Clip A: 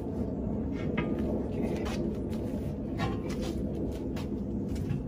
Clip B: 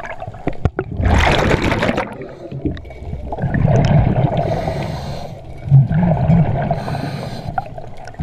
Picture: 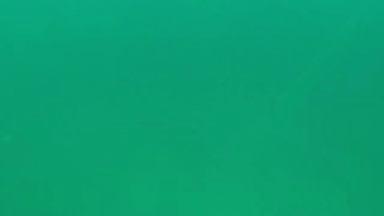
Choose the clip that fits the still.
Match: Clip B